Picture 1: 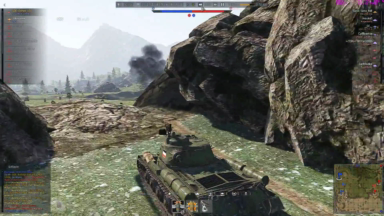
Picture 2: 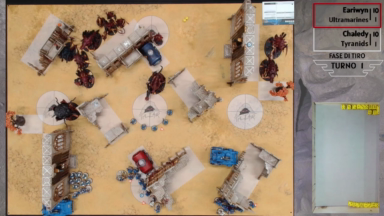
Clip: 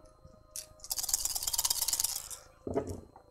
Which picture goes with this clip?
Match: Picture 2